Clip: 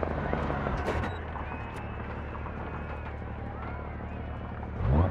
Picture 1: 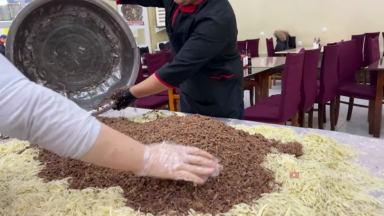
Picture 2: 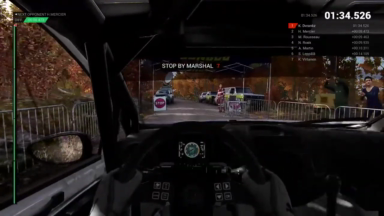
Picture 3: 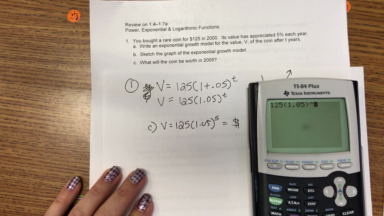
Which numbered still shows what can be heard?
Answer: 2